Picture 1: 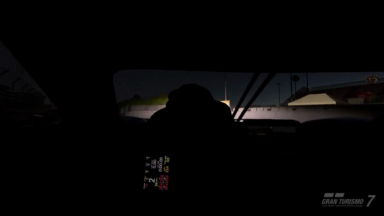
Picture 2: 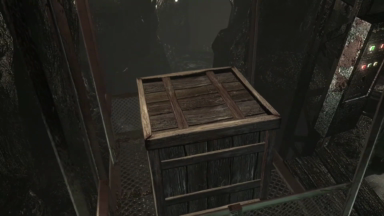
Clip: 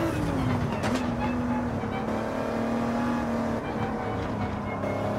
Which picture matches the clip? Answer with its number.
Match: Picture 1